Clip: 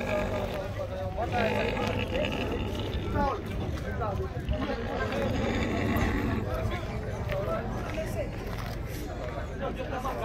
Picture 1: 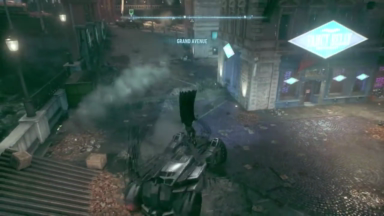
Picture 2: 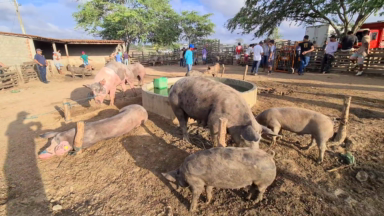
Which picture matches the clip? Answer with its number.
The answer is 2